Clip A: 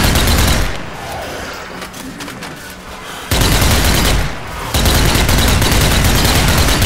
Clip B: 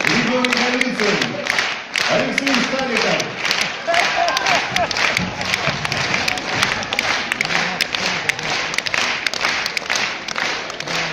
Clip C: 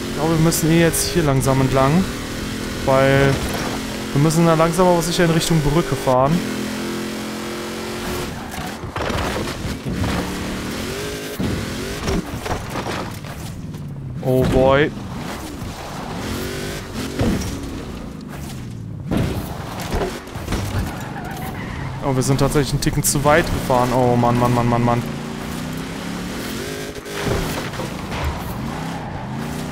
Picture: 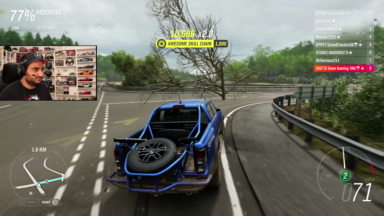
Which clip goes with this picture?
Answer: C